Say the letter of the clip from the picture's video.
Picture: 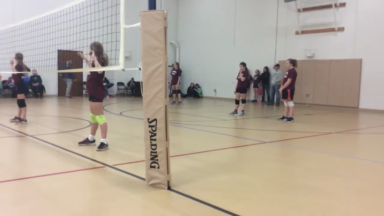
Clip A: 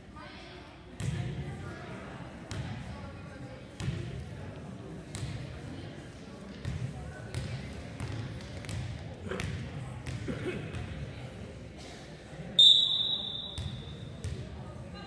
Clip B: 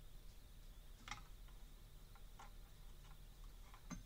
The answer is A